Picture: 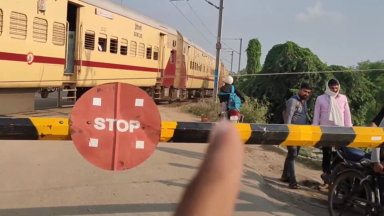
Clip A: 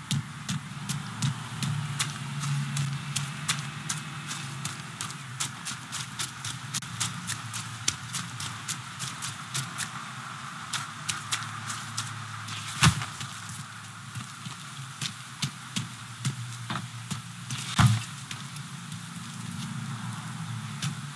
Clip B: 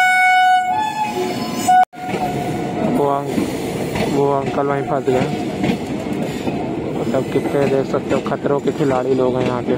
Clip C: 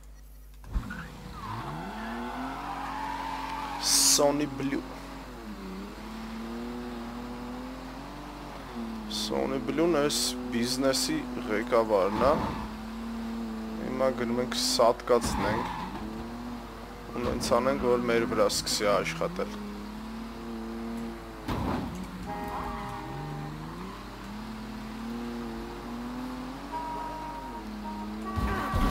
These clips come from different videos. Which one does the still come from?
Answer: B